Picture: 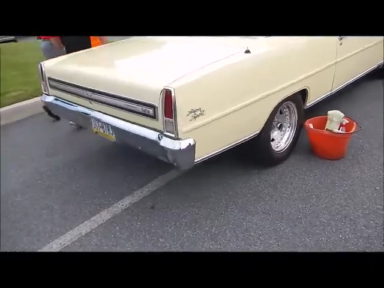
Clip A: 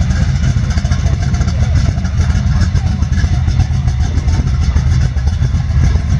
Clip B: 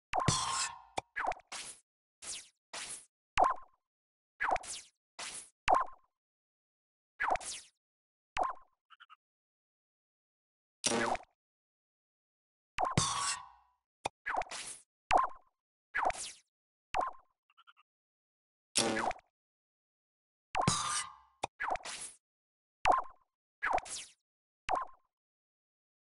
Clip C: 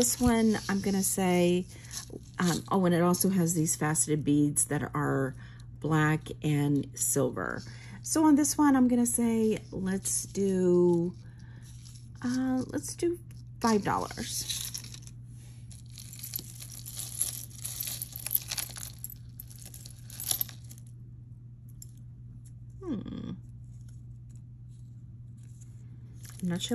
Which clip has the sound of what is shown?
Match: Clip A